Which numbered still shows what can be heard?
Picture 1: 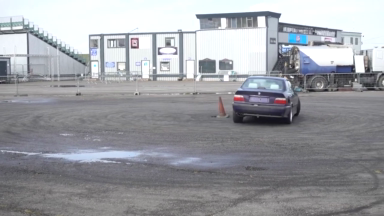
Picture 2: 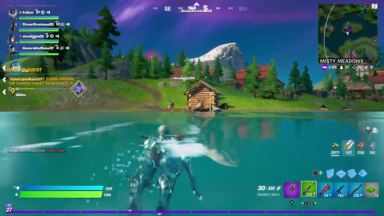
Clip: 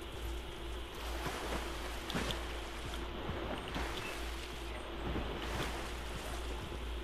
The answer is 2